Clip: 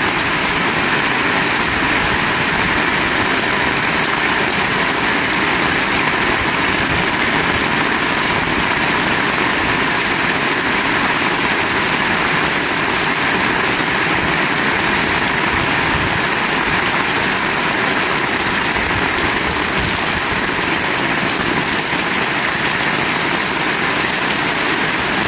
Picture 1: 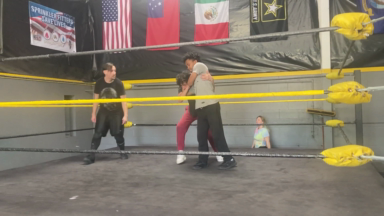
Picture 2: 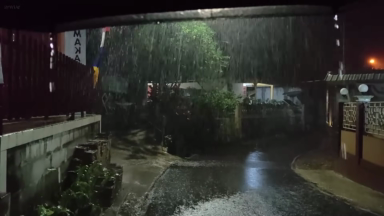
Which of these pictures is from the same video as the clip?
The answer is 2